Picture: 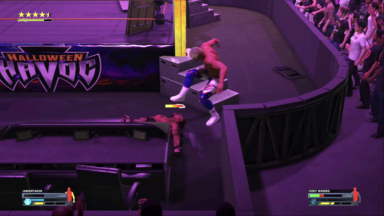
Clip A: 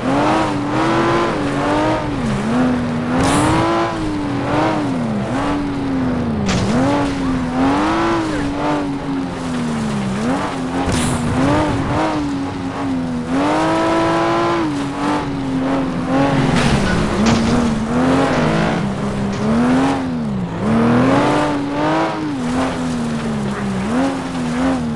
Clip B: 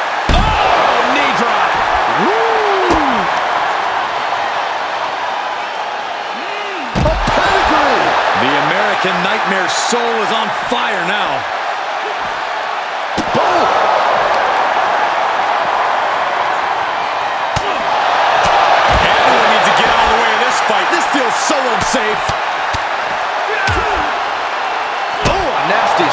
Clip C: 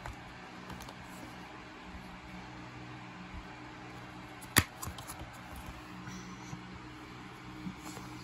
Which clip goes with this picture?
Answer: B